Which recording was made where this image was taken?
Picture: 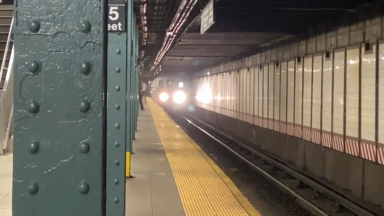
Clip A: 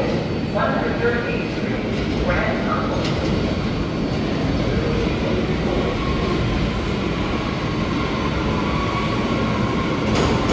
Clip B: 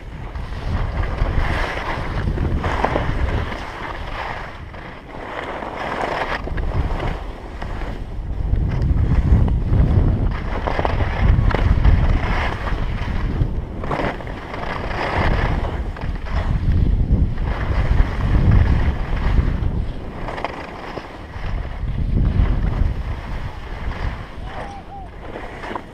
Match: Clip A